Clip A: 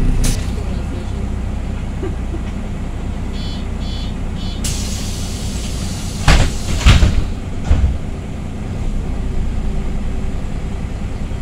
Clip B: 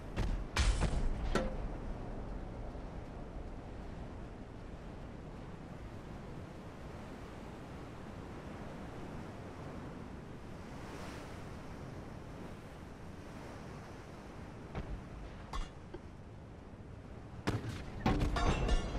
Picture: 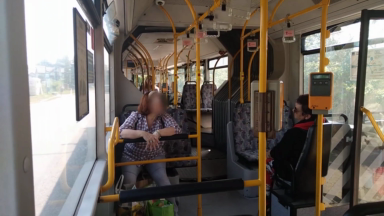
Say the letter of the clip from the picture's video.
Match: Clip A